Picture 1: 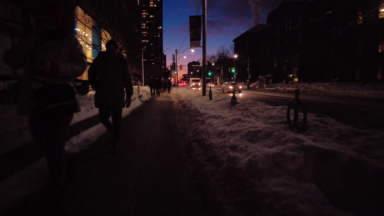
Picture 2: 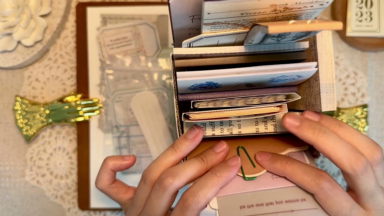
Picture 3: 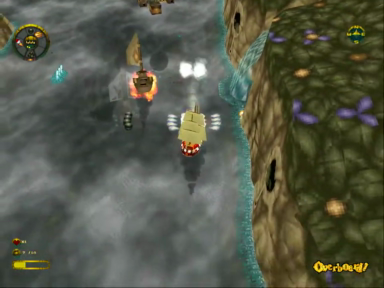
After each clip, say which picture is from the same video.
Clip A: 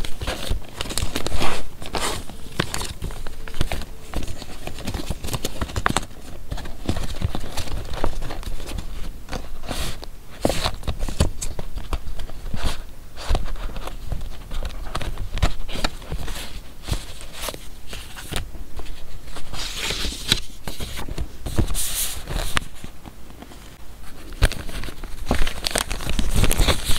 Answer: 2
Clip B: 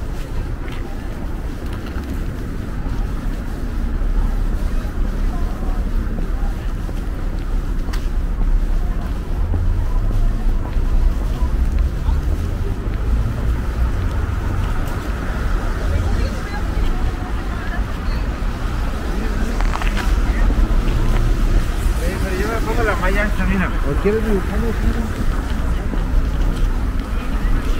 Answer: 1